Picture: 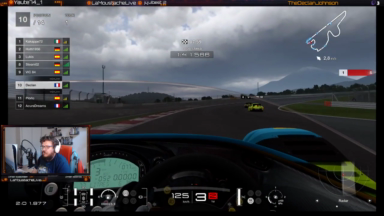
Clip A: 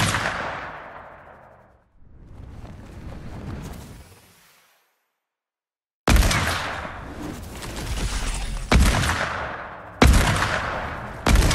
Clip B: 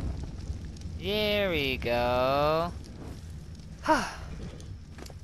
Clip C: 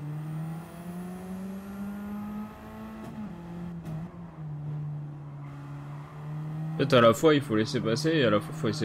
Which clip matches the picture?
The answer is C